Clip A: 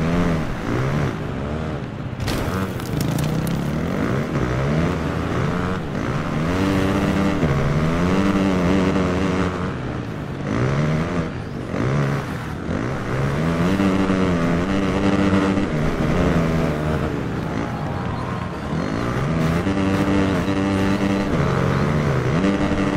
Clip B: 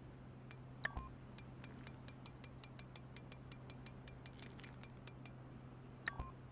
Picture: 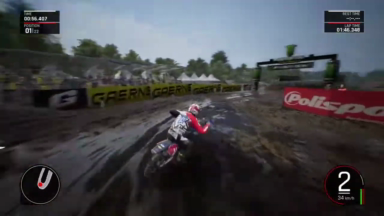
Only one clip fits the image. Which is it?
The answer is A